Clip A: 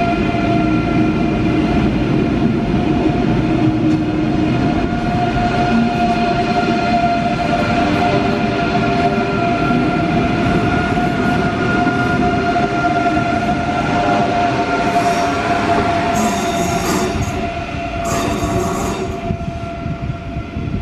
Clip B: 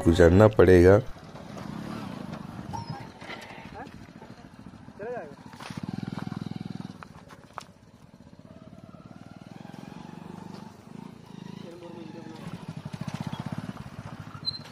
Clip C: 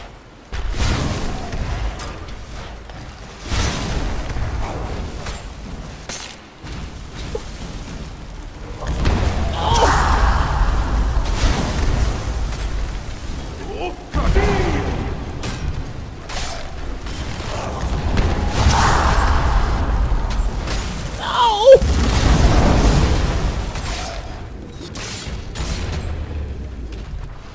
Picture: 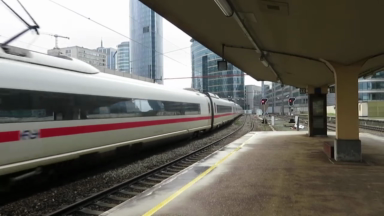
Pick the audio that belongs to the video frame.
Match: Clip A